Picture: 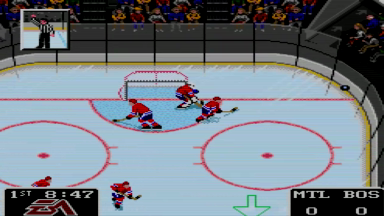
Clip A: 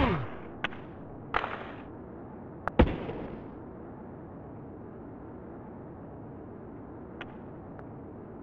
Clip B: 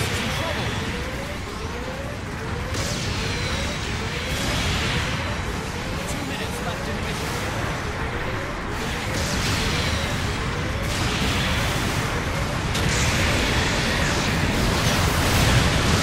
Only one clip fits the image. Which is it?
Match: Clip A